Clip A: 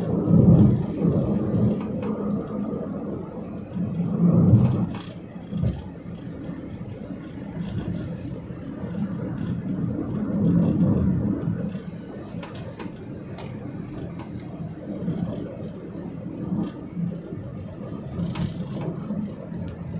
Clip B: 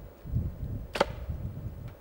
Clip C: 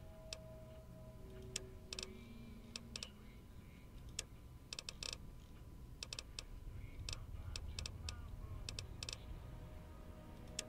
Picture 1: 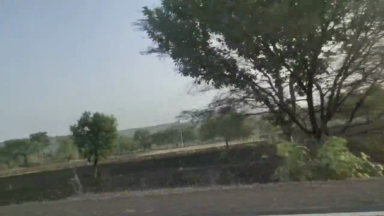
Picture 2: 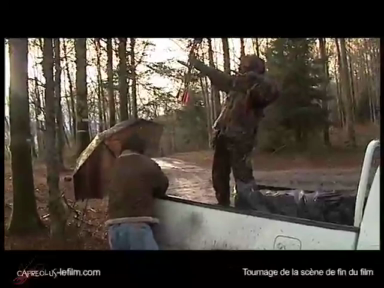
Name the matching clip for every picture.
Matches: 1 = A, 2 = B